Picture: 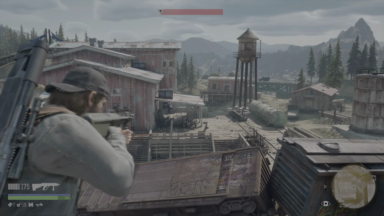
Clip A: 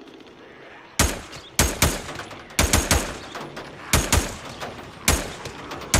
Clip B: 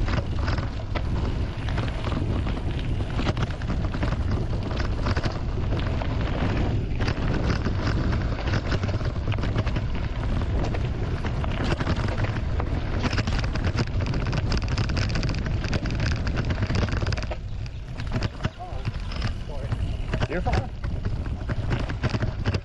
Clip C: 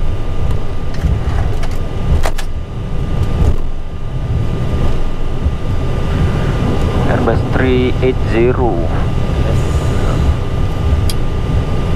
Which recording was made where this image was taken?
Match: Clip A